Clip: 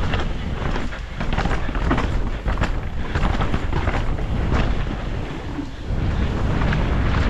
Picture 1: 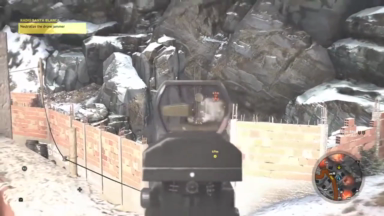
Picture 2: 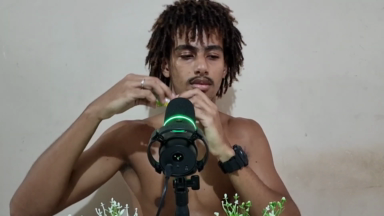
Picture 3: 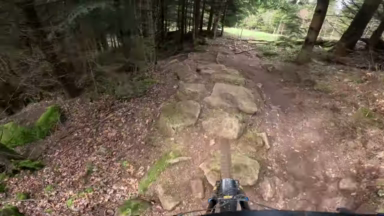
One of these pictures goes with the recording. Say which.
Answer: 3